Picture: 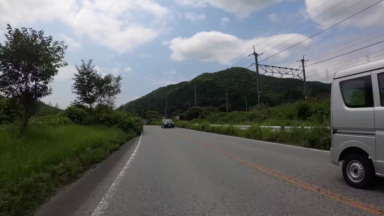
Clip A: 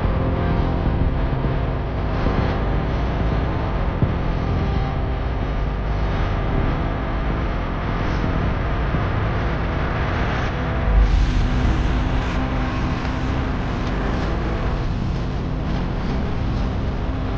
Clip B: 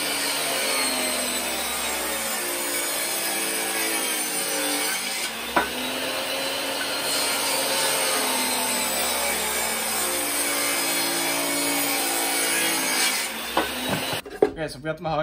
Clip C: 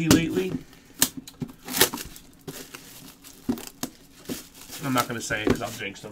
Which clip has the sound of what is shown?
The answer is A